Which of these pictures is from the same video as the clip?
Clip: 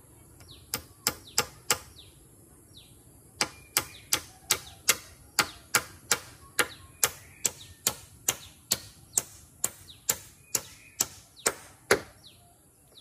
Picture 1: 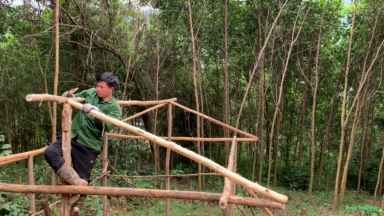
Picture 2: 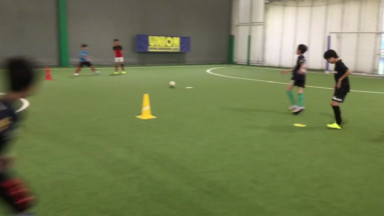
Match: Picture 1